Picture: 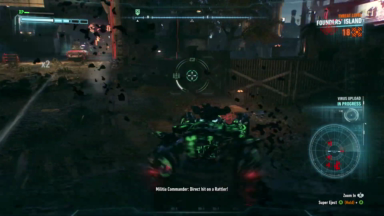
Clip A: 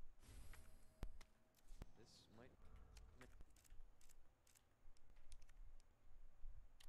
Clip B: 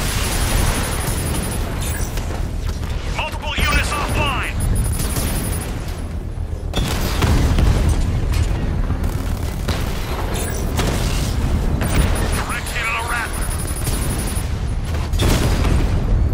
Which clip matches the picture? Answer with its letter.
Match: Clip B